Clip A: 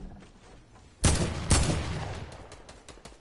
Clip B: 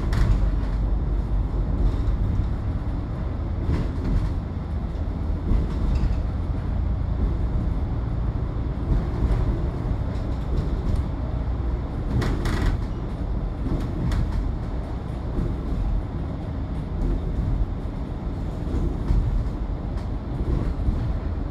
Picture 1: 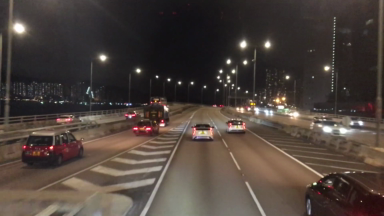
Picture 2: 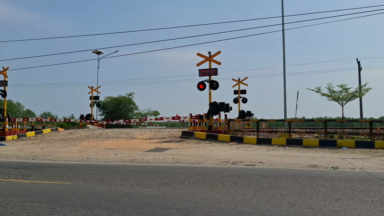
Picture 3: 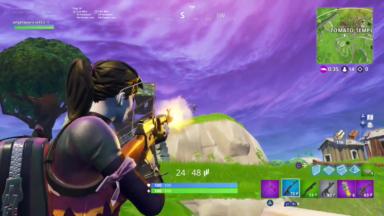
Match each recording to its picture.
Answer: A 3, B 1